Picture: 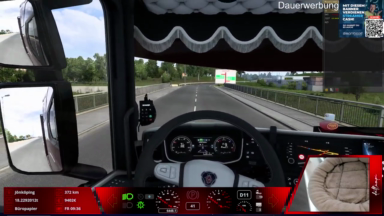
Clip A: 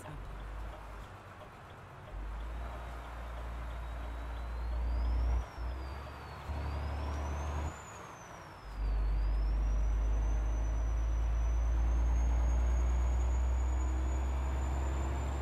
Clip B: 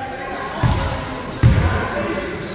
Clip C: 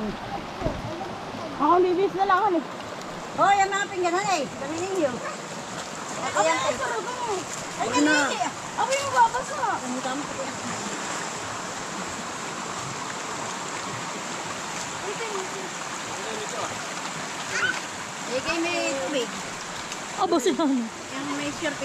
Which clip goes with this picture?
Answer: A